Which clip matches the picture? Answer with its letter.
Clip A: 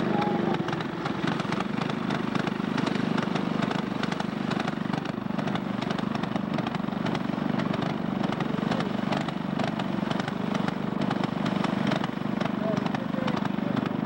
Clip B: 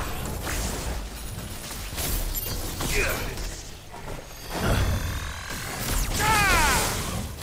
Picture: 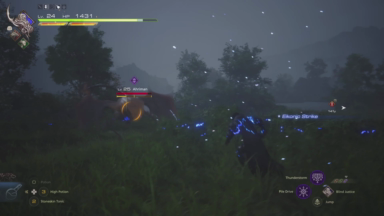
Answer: B